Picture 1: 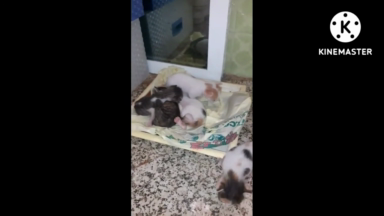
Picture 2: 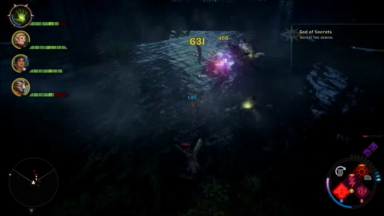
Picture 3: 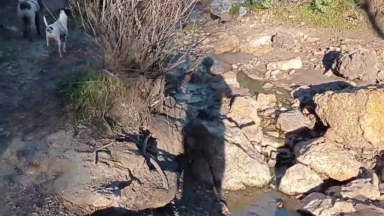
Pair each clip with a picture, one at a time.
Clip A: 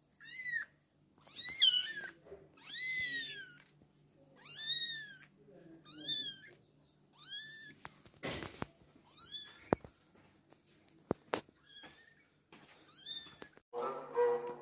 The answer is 1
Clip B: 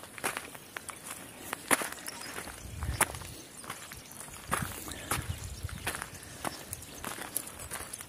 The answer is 3